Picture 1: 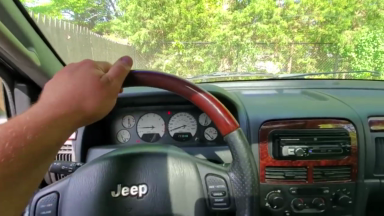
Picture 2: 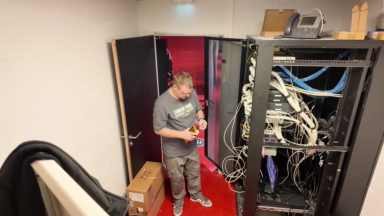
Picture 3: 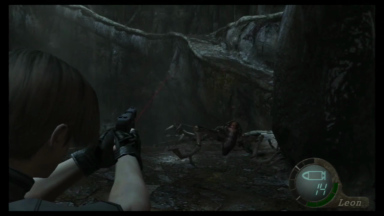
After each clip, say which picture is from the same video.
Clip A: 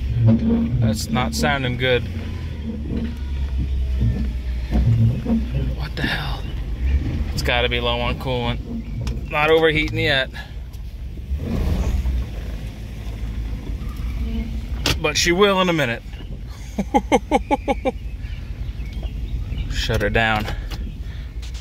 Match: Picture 1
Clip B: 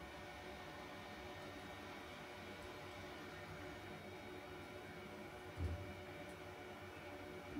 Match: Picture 2